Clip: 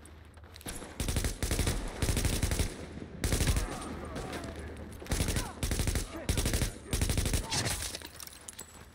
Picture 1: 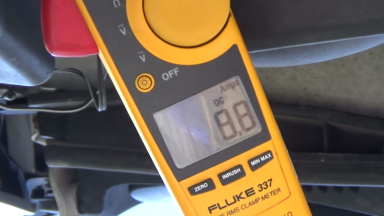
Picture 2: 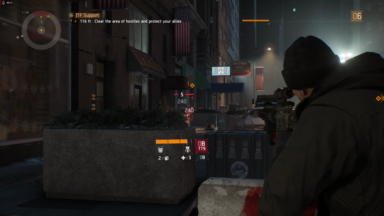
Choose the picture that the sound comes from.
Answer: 2